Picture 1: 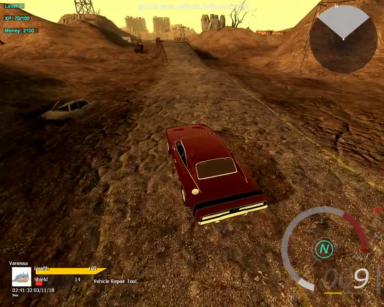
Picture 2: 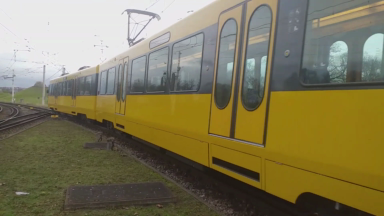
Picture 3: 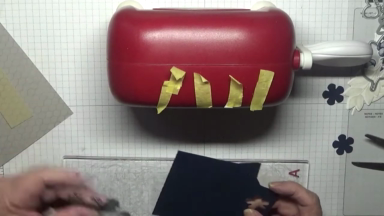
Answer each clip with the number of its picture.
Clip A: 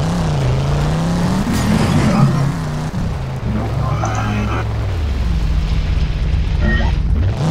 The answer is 1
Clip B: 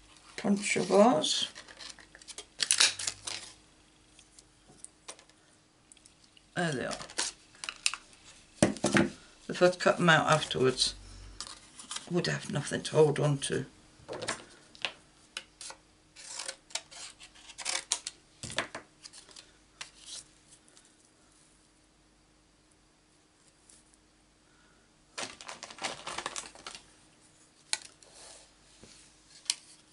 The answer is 3